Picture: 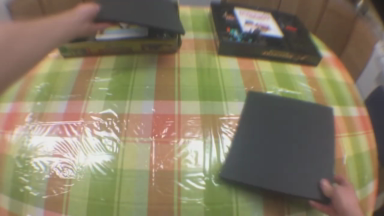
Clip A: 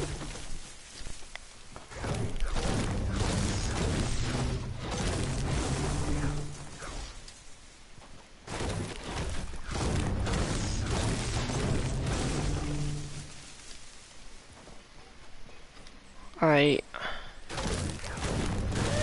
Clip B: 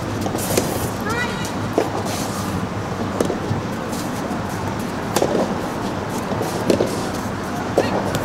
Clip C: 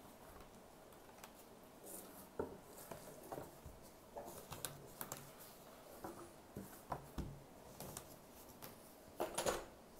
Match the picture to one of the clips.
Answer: C